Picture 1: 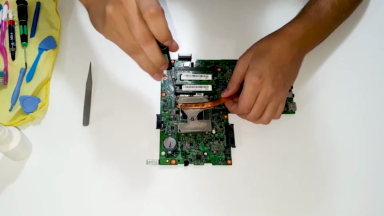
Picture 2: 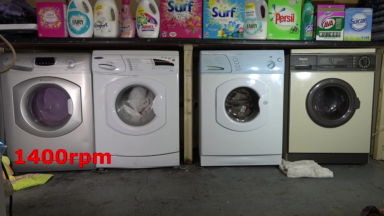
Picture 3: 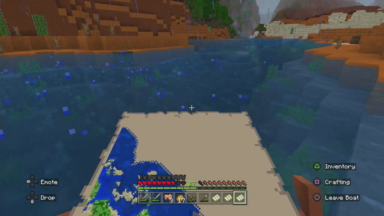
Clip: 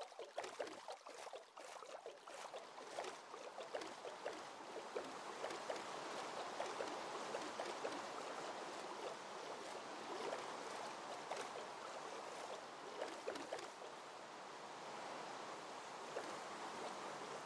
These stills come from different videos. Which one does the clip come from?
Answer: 3